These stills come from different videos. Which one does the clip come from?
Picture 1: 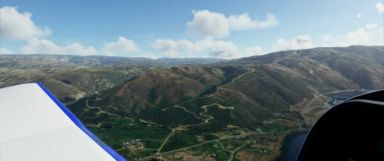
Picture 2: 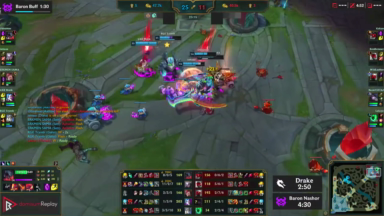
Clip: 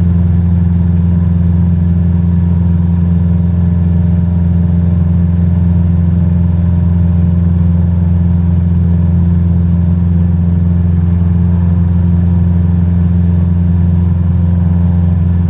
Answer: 1